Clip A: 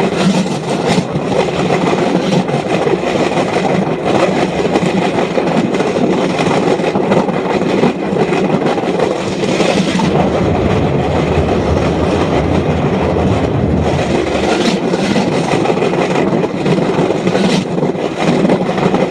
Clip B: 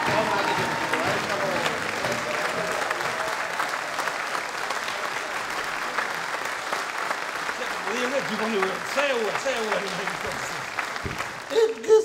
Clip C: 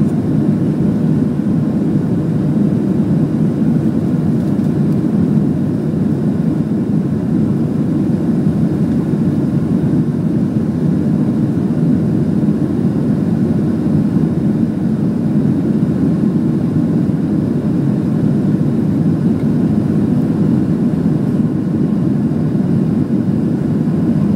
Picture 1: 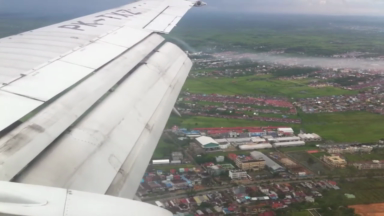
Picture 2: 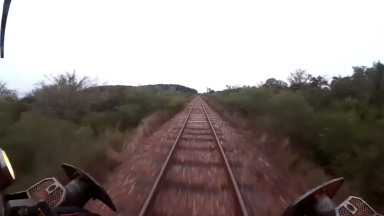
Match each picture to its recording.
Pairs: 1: C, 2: A